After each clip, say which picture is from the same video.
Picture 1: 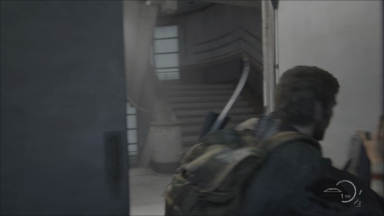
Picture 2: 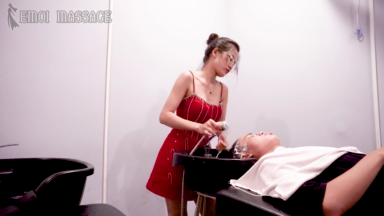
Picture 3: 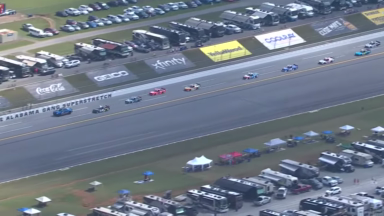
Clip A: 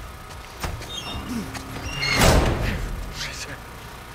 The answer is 1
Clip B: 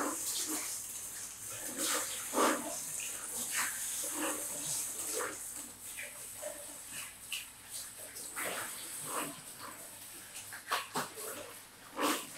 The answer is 2